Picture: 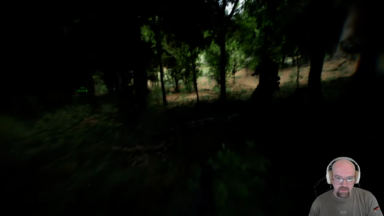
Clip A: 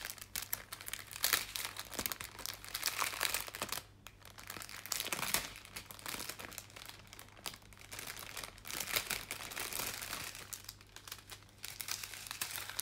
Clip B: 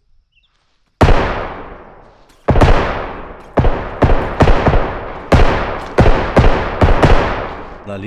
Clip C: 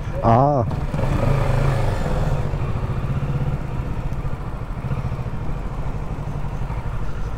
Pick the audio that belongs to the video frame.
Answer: B